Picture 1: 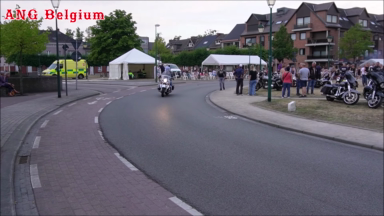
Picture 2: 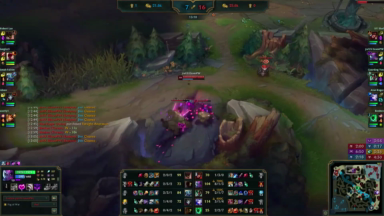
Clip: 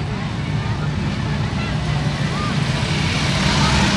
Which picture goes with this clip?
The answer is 1